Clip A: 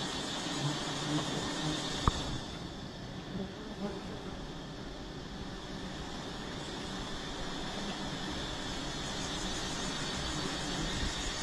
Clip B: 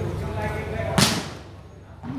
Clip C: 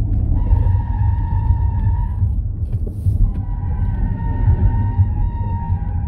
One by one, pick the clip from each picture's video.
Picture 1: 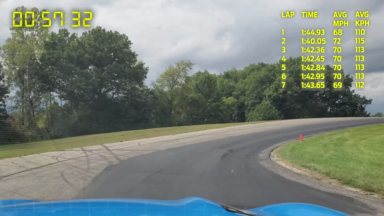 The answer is C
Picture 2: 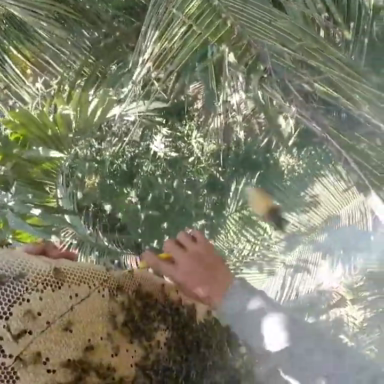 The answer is A